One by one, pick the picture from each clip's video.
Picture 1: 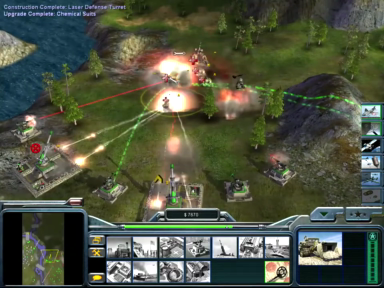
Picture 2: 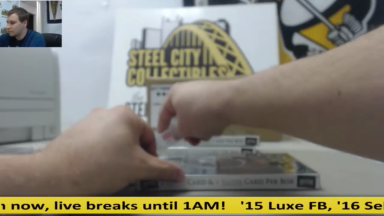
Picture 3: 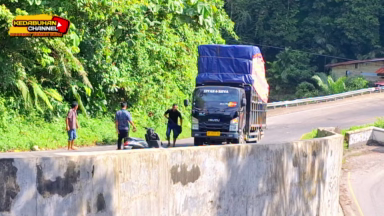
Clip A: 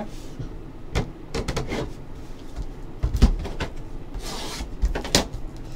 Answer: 2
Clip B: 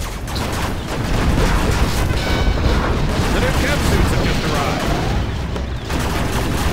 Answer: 1